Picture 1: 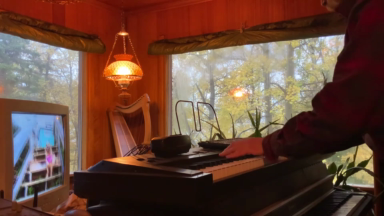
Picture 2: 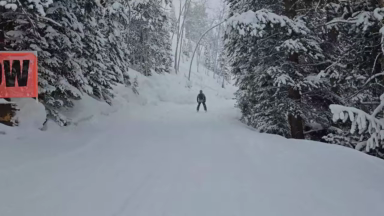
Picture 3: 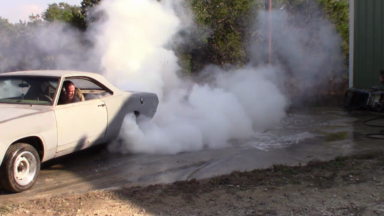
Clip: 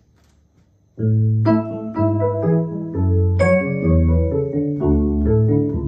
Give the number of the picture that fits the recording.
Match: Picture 1